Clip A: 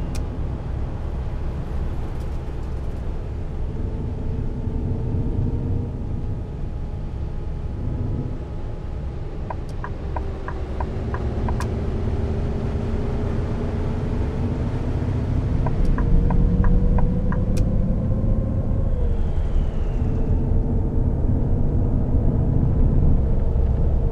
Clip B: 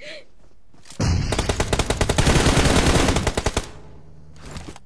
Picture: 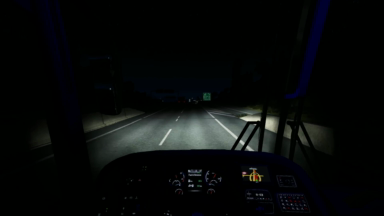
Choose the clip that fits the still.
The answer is A